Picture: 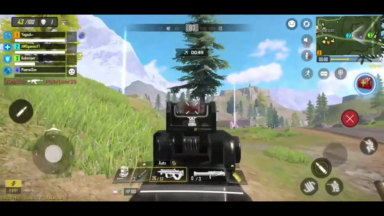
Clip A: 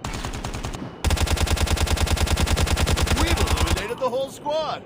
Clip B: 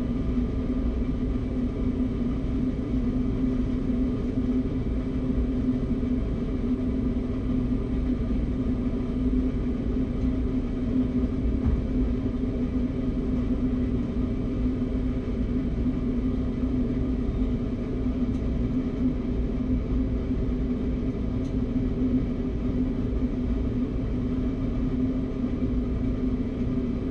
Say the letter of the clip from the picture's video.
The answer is A